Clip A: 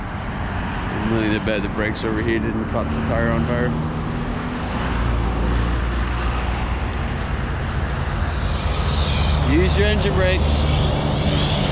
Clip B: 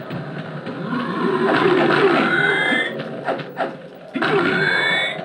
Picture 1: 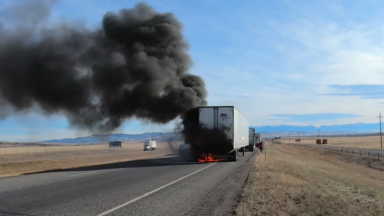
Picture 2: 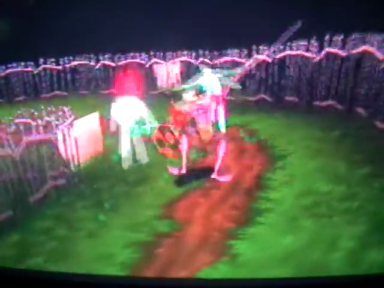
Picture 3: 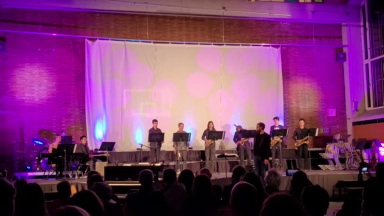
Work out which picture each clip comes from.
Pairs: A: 1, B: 2